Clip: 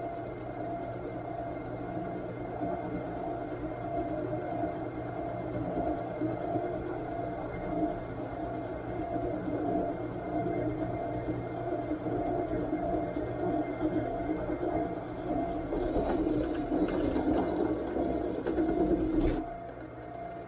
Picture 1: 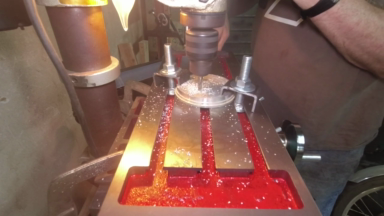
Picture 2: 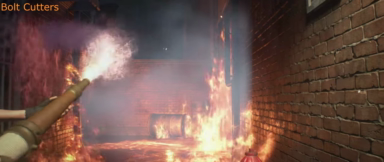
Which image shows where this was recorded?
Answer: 1